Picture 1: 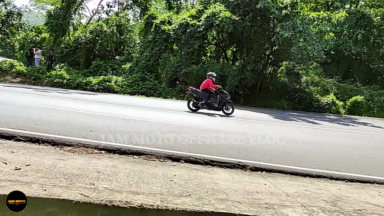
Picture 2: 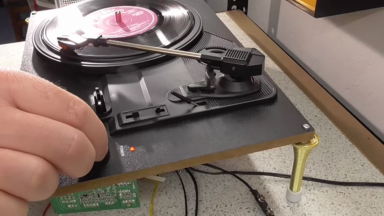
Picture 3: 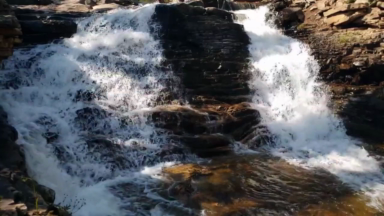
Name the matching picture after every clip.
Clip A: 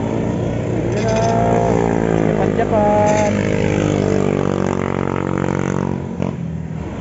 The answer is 1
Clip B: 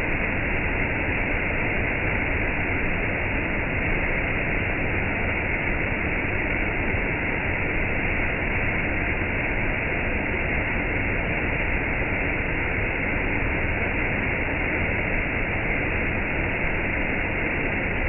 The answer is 3